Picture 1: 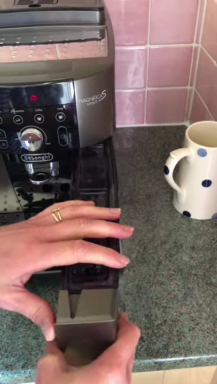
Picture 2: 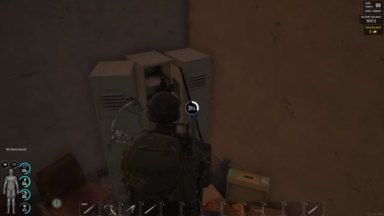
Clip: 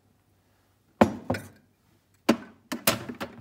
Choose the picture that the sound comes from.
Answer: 1